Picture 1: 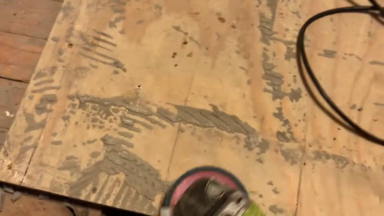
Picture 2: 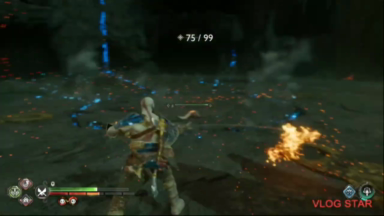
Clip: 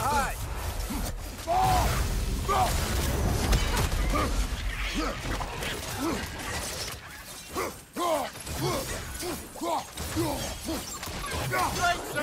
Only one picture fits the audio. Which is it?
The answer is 2